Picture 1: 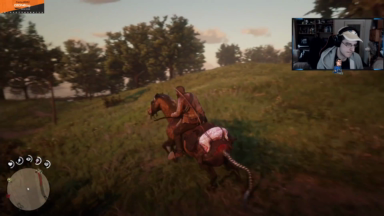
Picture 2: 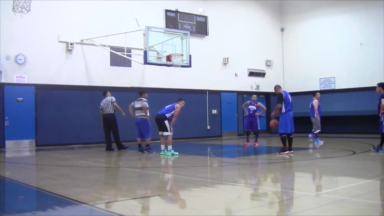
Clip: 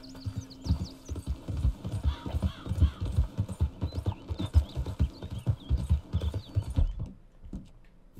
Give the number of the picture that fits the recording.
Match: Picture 1